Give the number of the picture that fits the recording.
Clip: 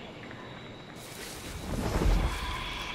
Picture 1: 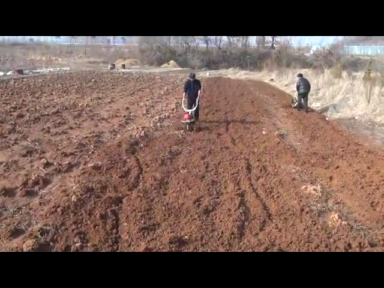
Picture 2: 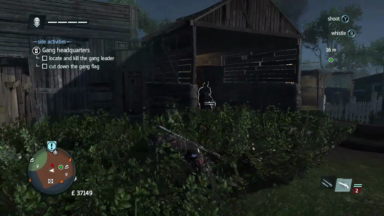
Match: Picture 2